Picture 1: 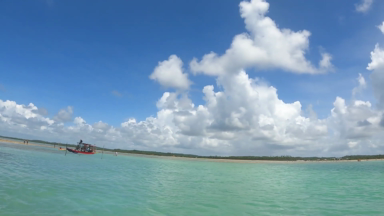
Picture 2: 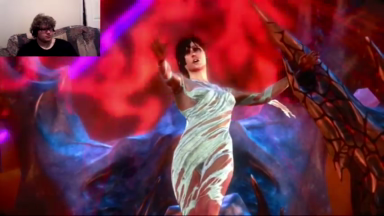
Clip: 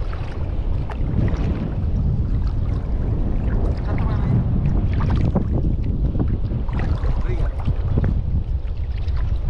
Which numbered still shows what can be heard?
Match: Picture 1